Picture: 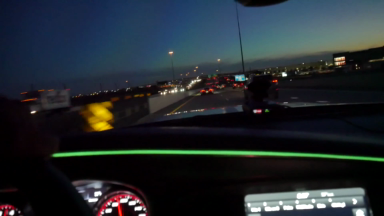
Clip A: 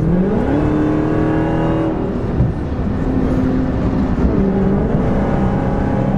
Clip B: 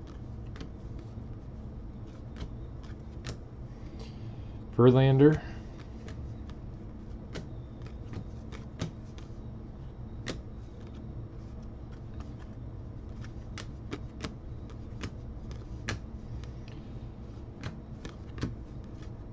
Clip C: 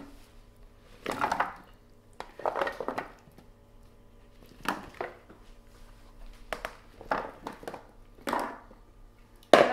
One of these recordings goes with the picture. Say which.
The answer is A